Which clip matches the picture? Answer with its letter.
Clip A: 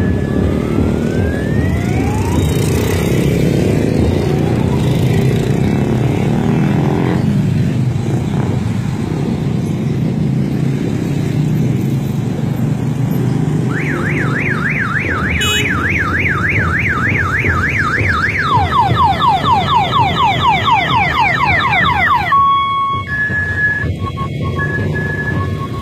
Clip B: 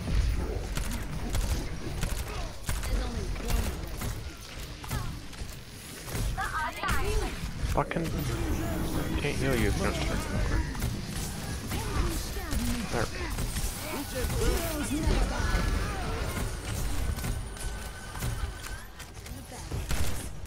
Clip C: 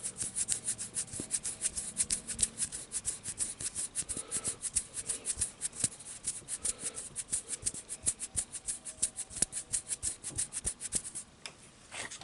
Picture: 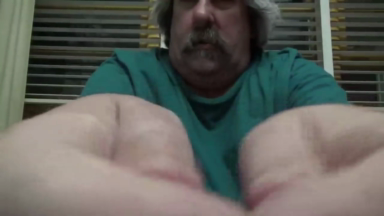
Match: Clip C